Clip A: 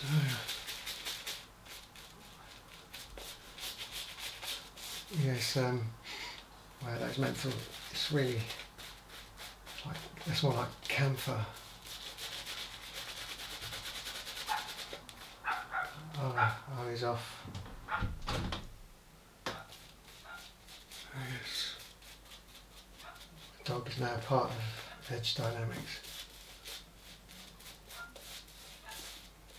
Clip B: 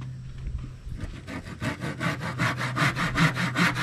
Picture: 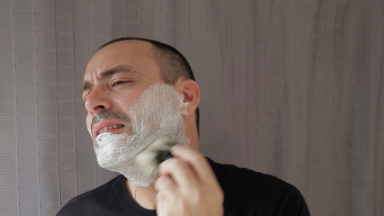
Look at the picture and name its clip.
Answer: A